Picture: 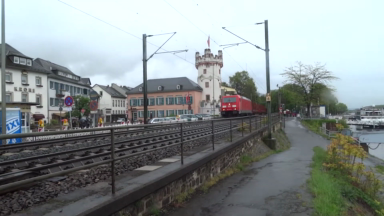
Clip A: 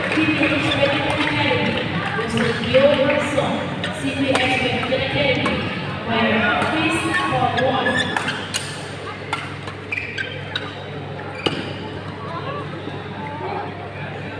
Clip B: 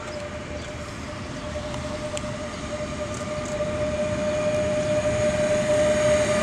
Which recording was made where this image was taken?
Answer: B